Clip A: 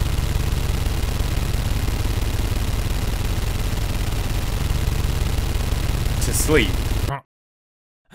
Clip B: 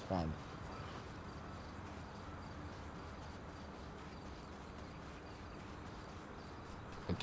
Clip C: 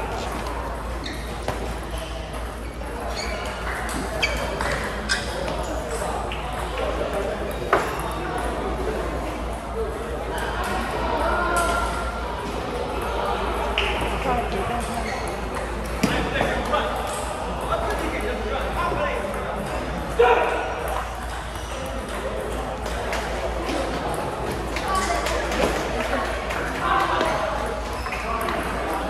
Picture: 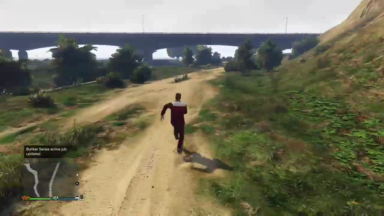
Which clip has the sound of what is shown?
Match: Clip B